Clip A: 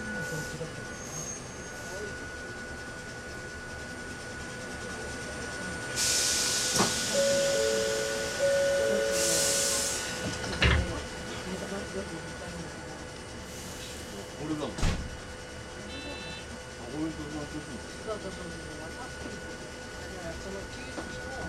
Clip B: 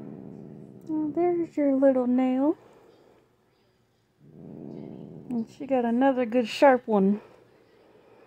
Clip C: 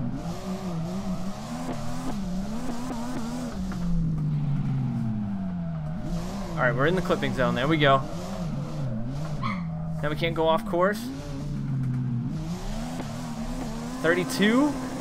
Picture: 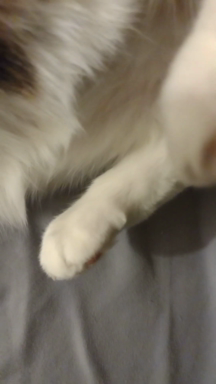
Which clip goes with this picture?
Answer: B